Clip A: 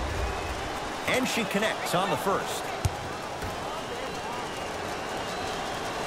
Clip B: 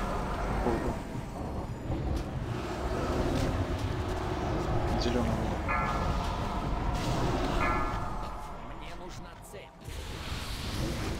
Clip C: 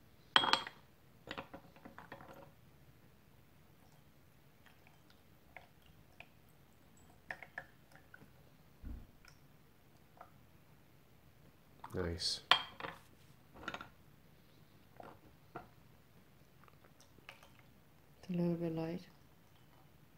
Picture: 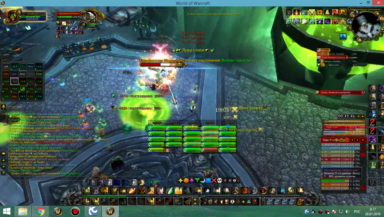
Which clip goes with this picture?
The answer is B